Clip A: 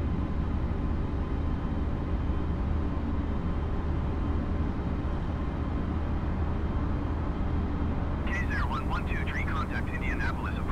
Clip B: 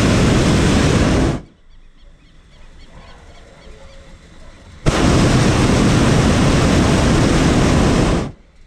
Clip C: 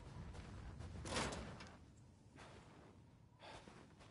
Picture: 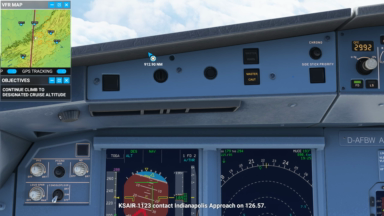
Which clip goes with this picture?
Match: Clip A